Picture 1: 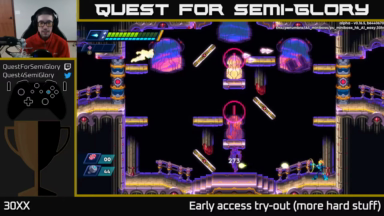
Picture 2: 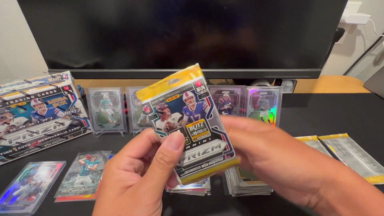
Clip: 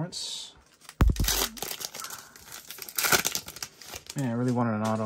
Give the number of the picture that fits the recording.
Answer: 2